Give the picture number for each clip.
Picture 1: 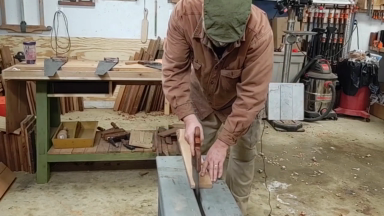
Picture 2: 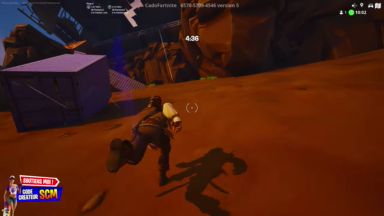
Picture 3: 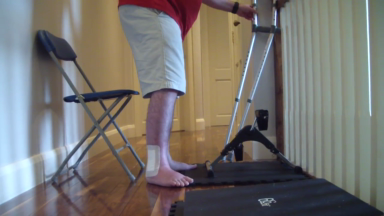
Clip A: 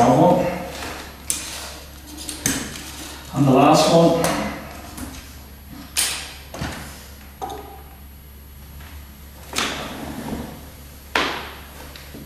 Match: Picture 3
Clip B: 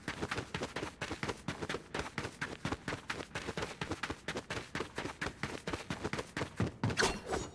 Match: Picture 2